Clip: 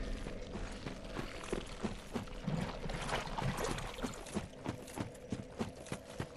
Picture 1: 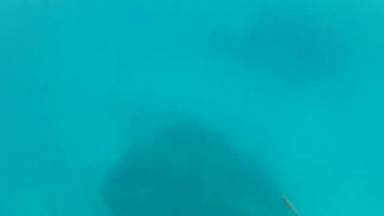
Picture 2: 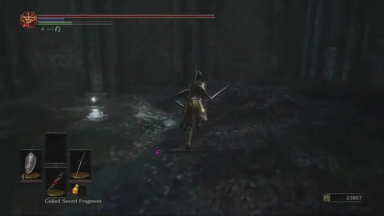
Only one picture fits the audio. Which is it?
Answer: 2